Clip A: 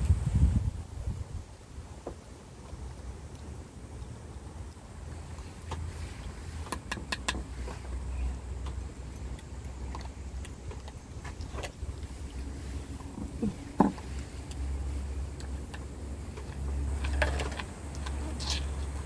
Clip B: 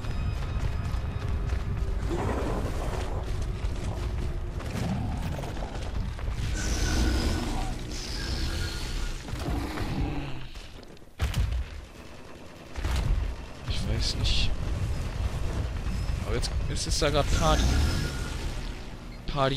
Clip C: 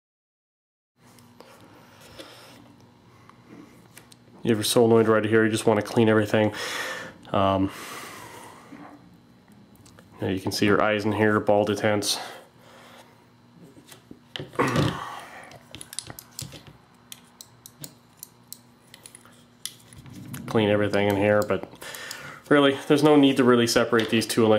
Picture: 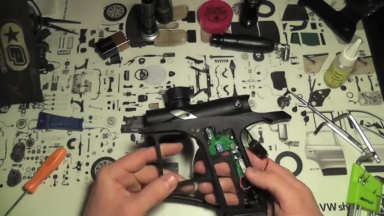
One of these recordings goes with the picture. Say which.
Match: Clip C